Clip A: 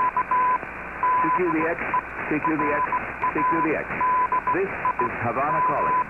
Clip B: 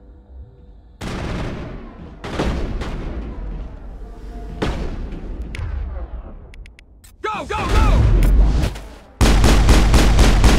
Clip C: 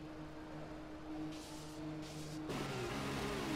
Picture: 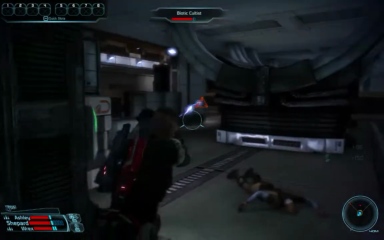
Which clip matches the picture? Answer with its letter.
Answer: B